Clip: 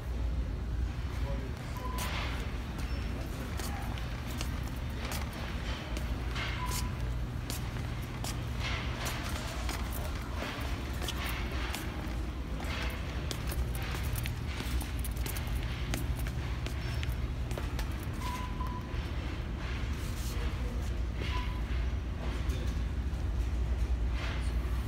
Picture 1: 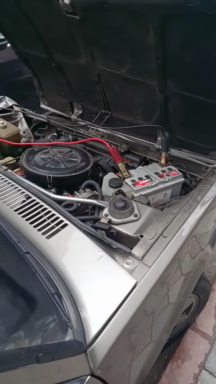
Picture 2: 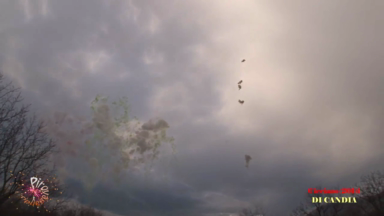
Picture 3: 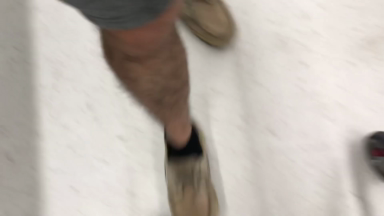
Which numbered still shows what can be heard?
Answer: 3